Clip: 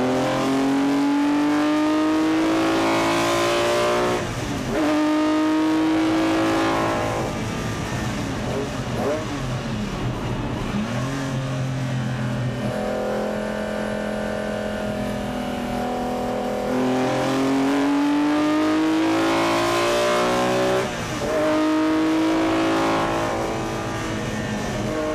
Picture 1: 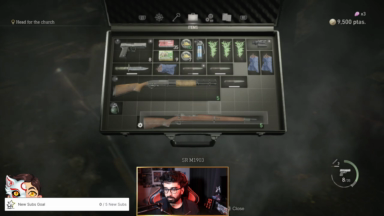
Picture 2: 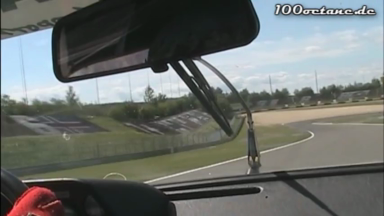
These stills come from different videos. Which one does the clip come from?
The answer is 2